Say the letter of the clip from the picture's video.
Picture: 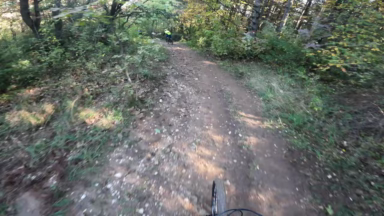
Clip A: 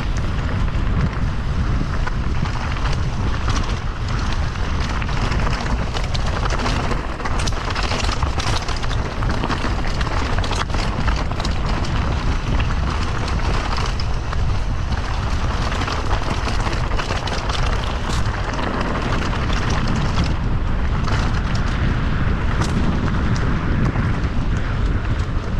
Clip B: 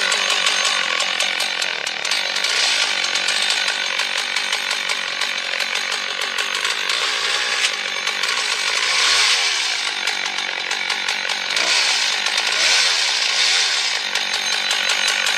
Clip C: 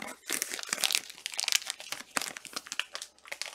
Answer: A